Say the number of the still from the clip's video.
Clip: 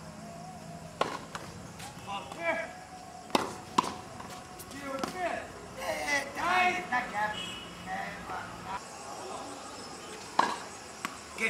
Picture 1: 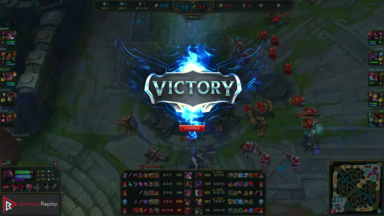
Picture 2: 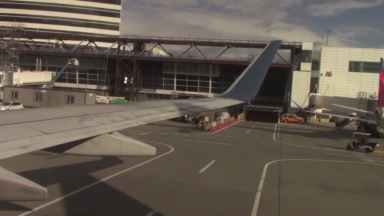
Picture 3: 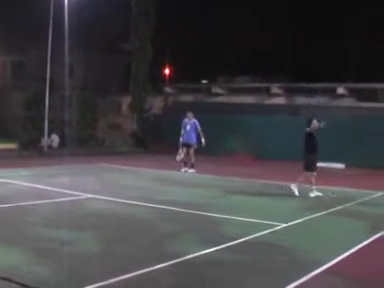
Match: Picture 3